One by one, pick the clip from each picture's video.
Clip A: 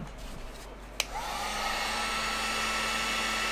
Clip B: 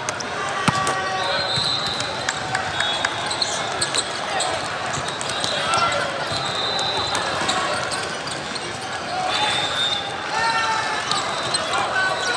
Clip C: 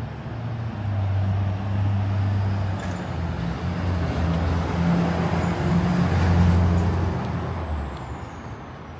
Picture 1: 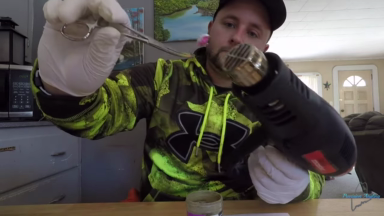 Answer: A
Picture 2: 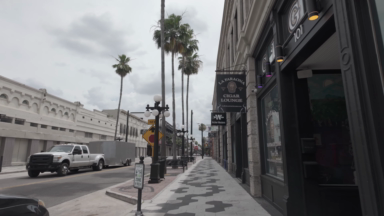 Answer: C